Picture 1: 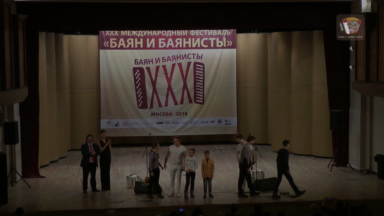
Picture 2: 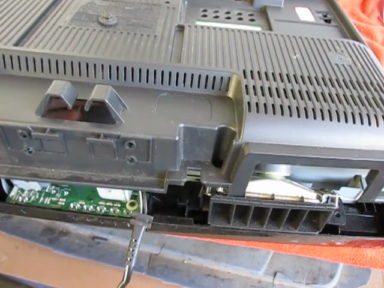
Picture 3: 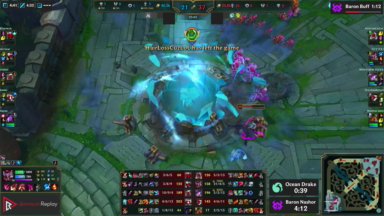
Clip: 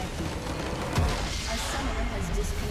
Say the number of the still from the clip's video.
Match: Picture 3